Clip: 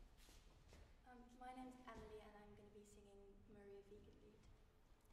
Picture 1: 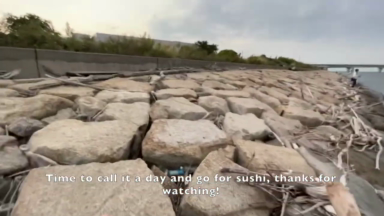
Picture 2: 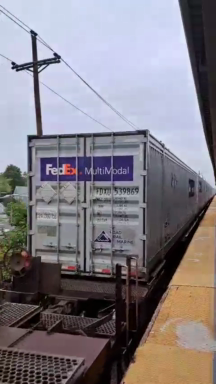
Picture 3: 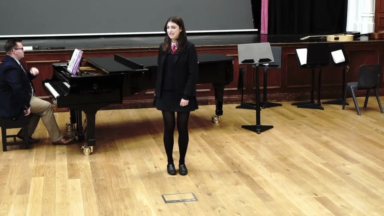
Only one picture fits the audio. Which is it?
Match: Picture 3